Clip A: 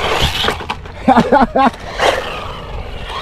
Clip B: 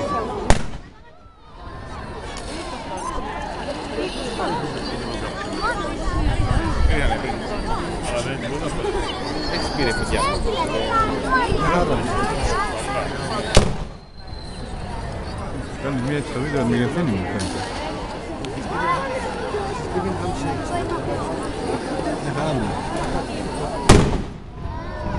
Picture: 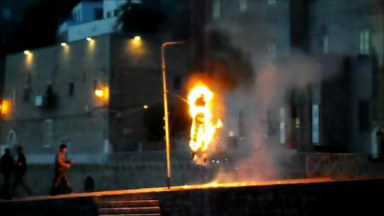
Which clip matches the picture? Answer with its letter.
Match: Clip B